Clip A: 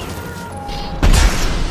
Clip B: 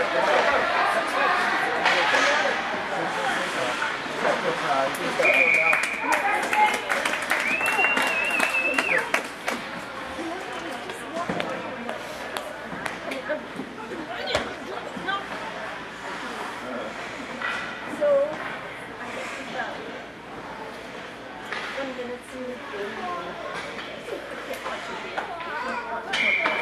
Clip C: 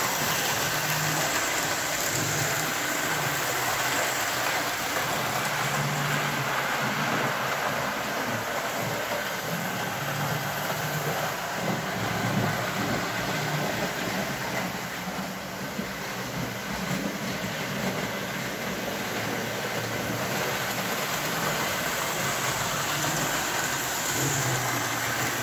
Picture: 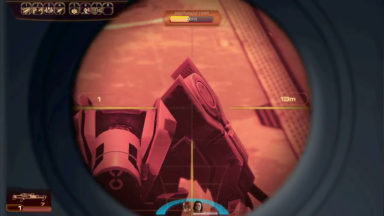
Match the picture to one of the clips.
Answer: A